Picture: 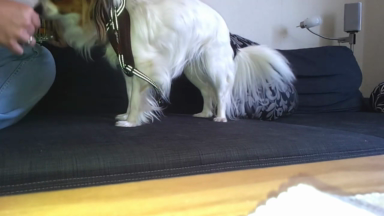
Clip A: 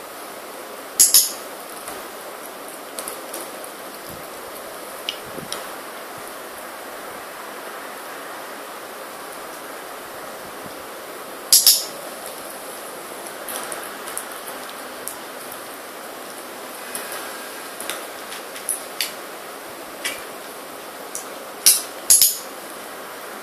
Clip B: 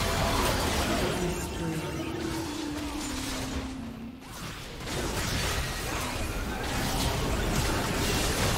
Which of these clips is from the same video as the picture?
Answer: A